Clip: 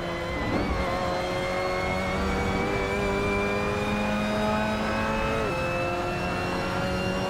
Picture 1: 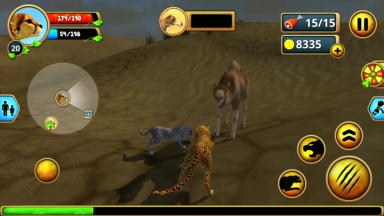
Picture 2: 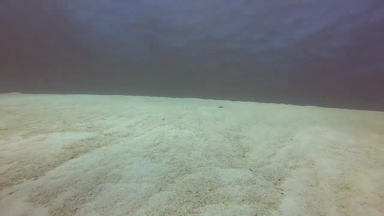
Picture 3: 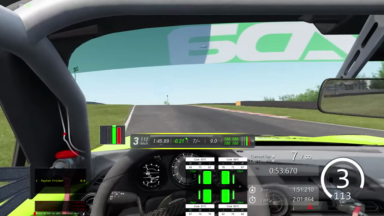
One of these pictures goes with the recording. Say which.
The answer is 3